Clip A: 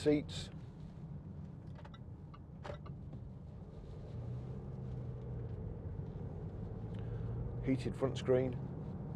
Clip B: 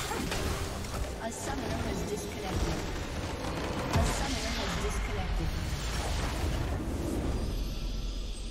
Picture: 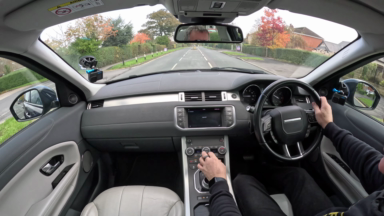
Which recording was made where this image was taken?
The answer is A